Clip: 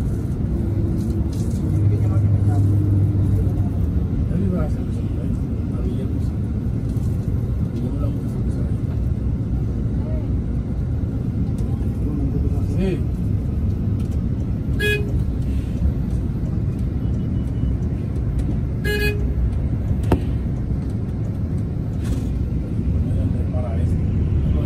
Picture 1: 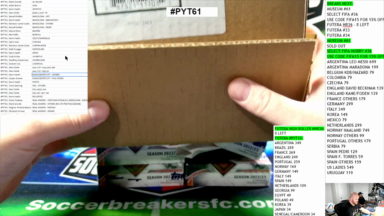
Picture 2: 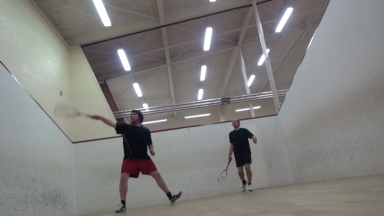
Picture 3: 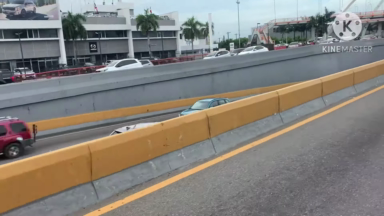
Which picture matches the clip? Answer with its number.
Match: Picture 3